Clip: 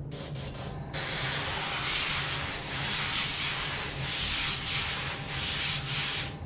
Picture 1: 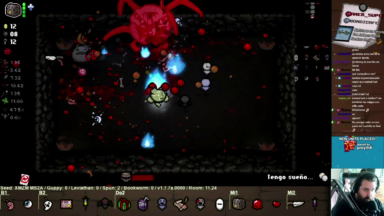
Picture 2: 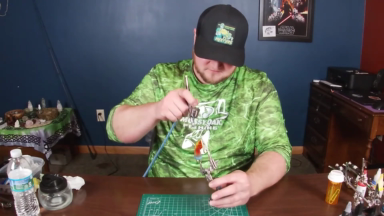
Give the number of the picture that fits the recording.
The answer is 2